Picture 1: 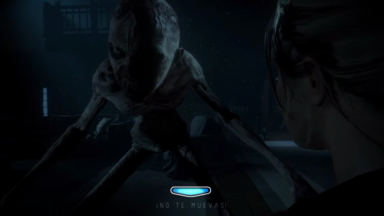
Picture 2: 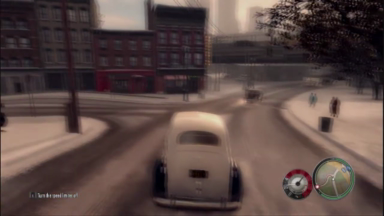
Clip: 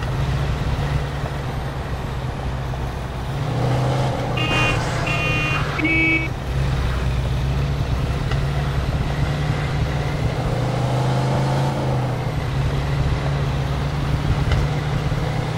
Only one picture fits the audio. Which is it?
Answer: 2